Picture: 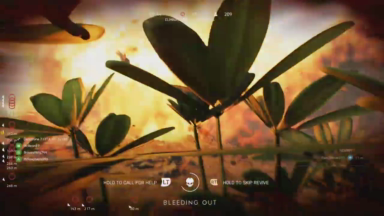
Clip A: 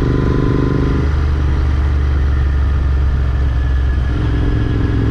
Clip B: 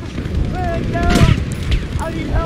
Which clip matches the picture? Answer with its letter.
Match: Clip B